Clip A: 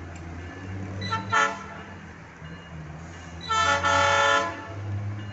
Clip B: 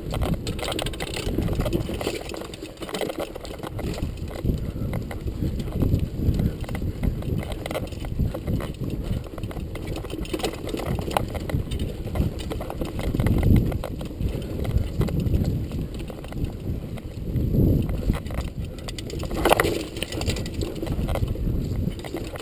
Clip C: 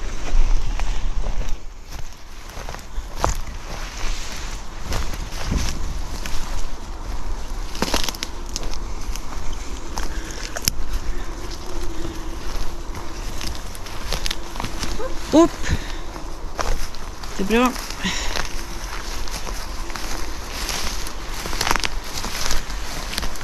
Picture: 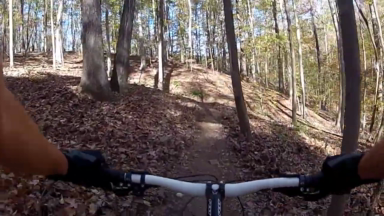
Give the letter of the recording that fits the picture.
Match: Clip B